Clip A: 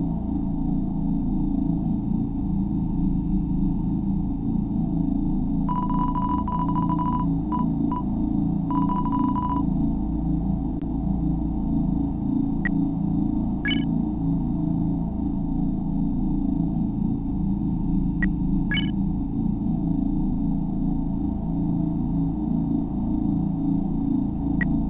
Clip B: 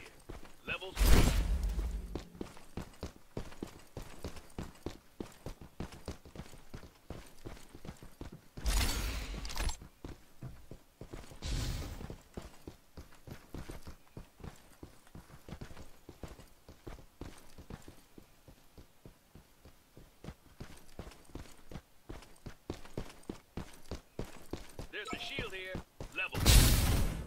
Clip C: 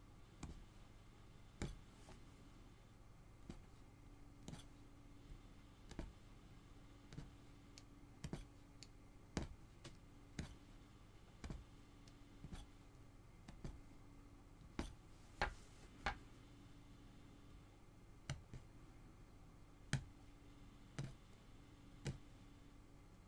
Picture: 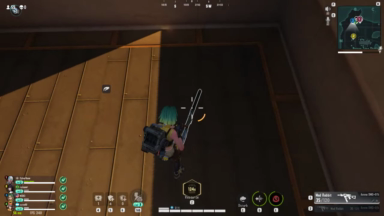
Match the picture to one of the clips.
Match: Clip B